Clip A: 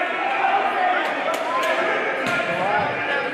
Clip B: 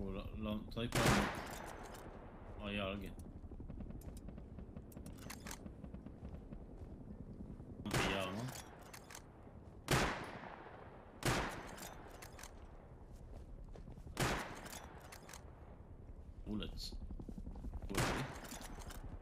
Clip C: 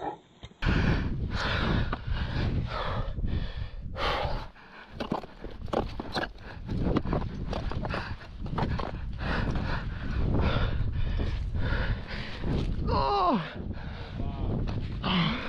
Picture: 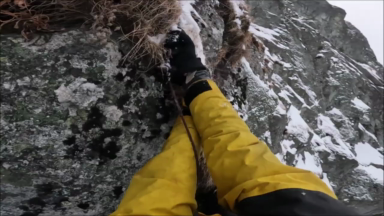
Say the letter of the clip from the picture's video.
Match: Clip C